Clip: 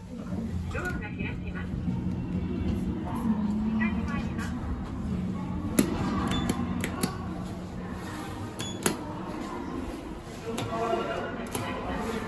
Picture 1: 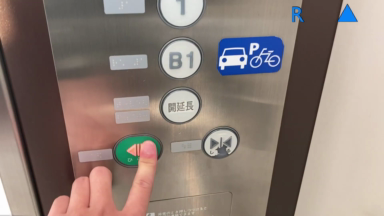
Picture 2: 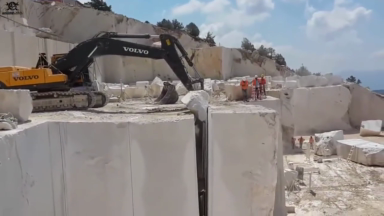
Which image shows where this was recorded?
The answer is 1